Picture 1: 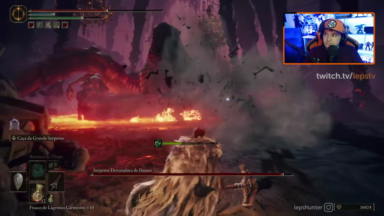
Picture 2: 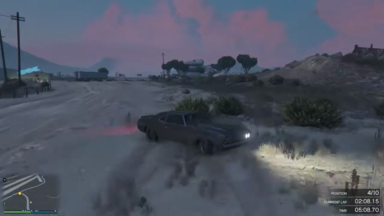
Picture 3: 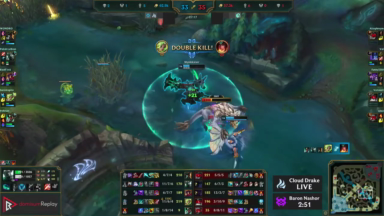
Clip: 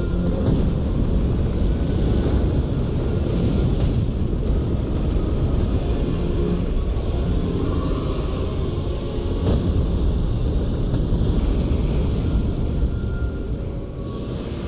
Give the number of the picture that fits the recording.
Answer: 1